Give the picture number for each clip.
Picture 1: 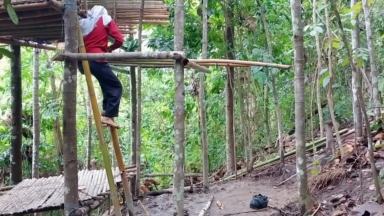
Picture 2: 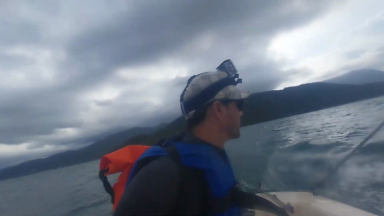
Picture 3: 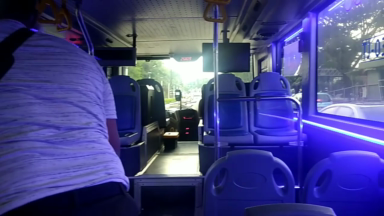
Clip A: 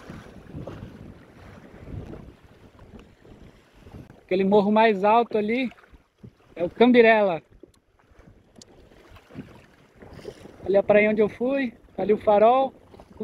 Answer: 2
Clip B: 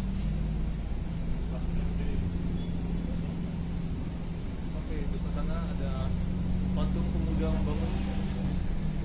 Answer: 3